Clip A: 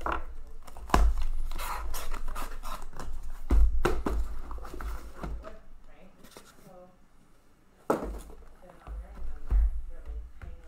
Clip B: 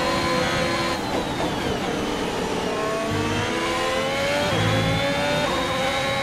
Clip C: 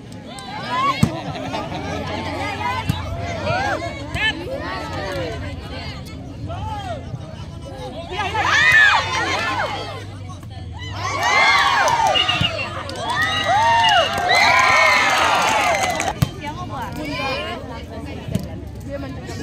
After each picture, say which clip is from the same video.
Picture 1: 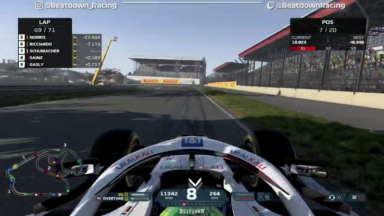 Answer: B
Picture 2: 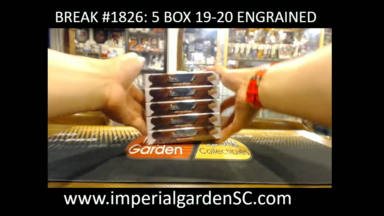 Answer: A